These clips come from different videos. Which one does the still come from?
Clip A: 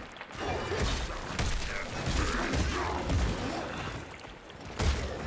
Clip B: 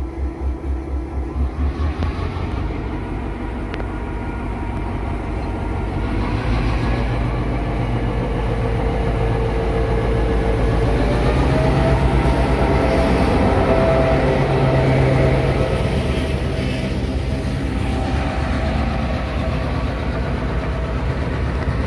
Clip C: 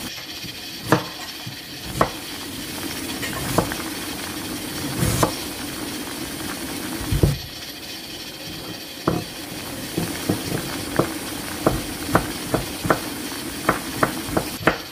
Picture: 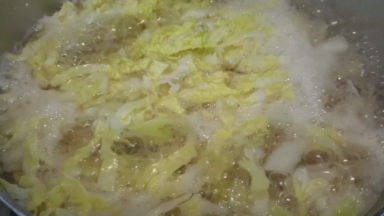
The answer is C